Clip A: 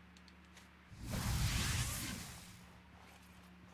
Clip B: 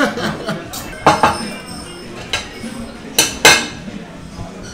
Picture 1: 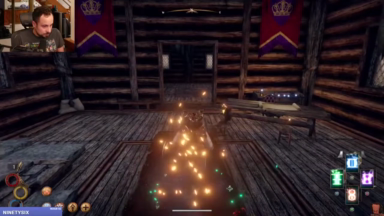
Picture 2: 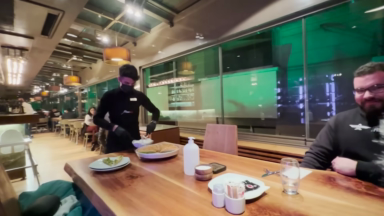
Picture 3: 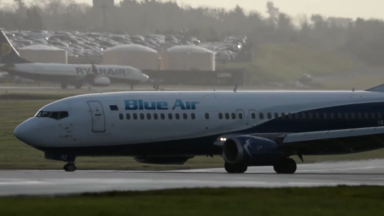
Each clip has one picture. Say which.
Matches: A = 1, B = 2